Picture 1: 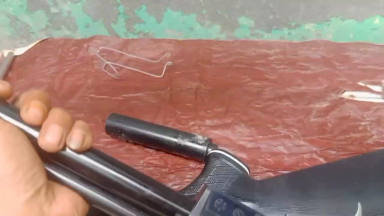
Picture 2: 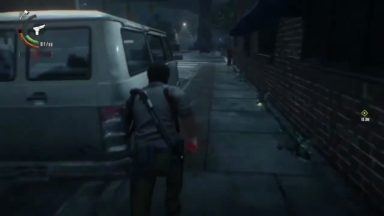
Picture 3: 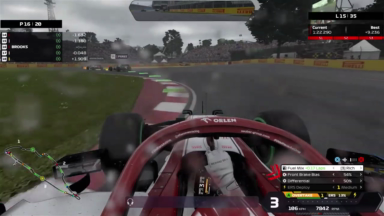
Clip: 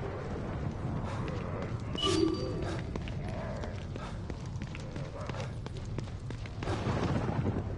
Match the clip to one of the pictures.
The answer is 2